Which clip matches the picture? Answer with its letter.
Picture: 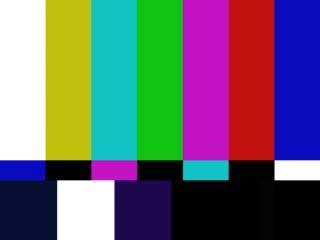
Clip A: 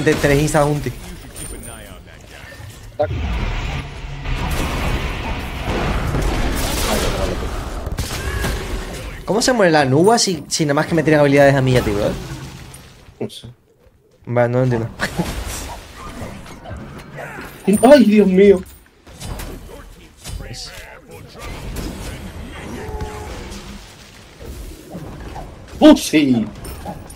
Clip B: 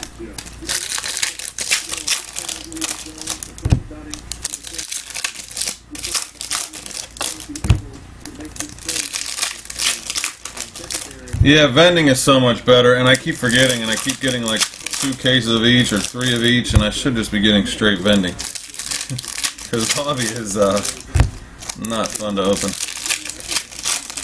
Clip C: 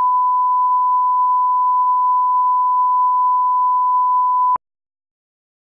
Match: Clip C